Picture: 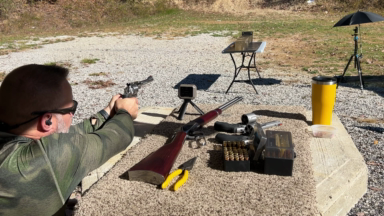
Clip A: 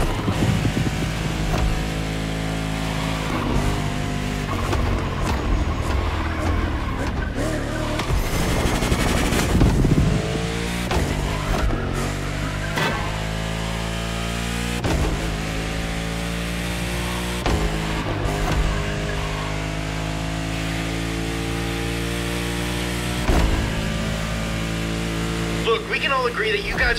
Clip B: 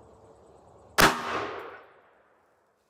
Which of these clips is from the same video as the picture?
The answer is B